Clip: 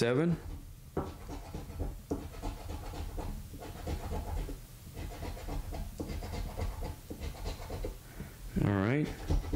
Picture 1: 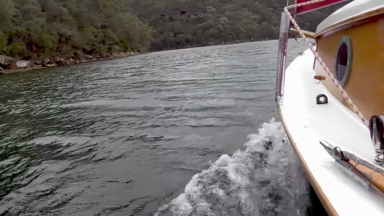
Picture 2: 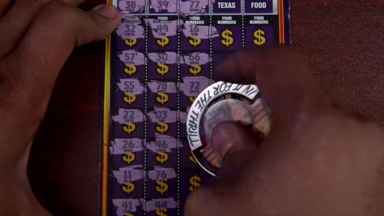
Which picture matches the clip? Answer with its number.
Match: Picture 2